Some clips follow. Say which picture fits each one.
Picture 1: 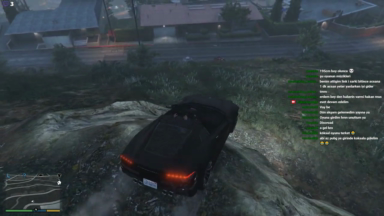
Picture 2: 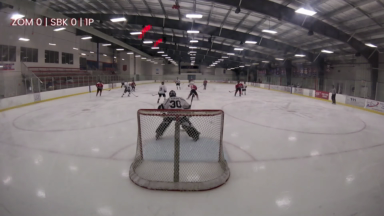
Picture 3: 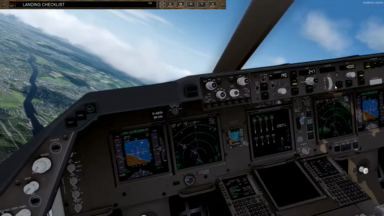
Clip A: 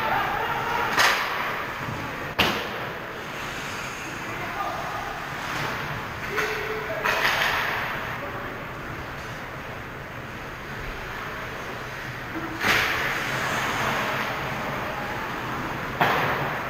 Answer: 2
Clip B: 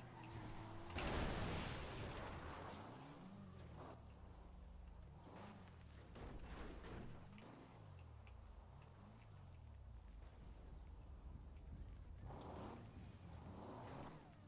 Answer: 1